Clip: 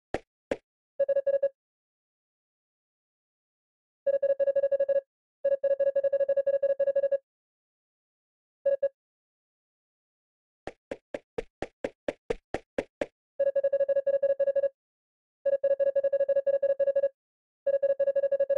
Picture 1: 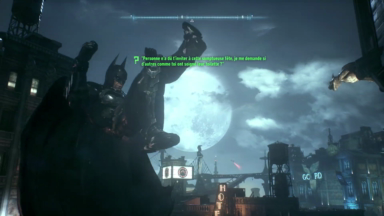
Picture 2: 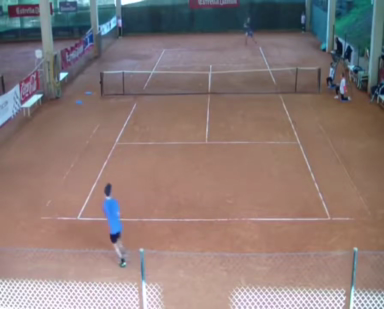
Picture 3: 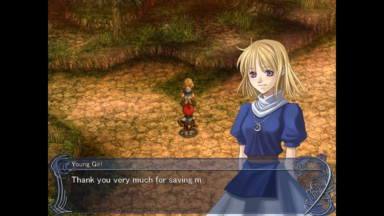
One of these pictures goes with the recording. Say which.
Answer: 3